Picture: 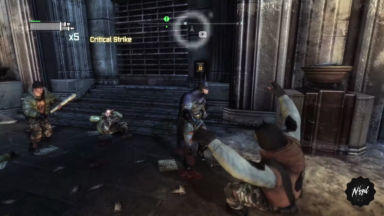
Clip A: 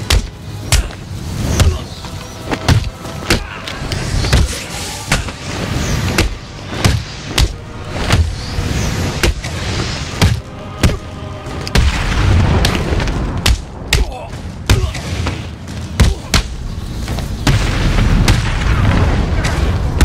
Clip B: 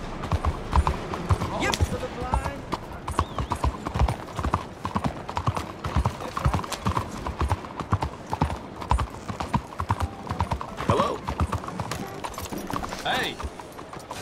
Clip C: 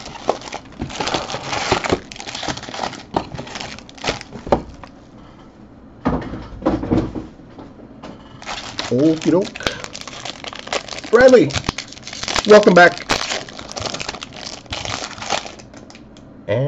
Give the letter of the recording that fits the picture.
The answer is A